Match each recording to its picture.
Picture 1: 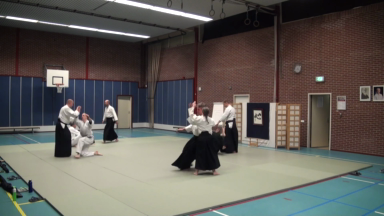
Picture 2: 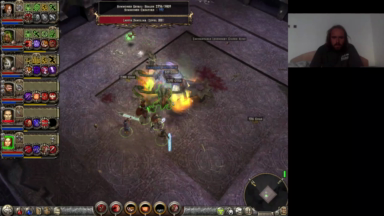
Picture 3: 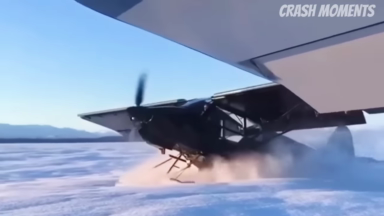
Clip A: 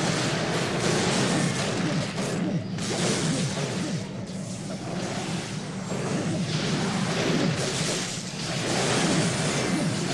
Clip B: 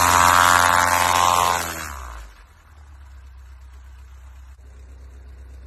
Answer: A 2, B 3